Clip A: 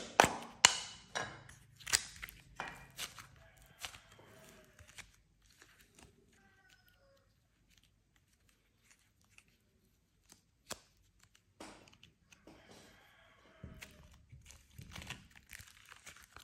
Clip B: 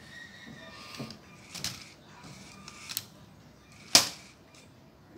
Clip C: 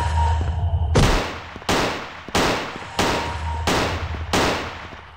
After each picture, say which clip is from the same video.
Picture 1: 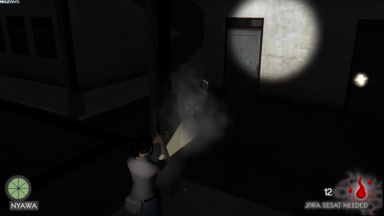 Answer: C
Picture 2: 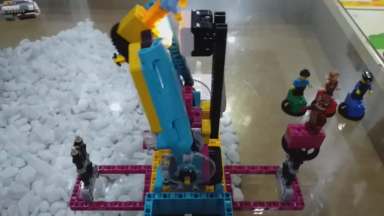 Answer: B